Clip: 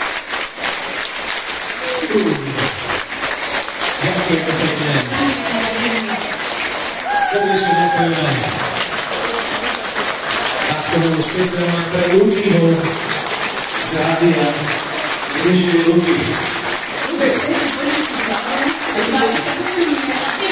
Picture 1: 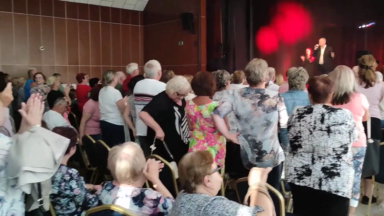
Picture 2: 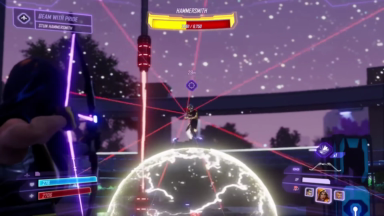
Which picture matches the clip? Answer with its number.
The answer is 1